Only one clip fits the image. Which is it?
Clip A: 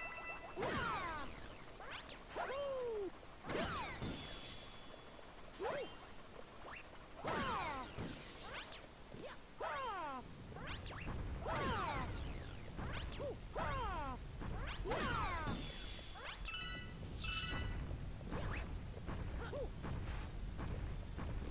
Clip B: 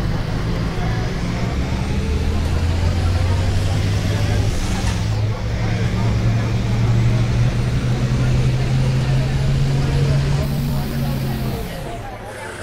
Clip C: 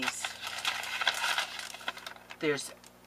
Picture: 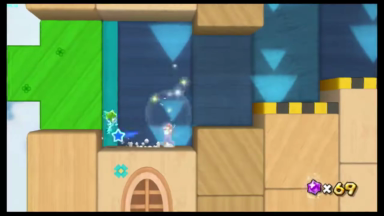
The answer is A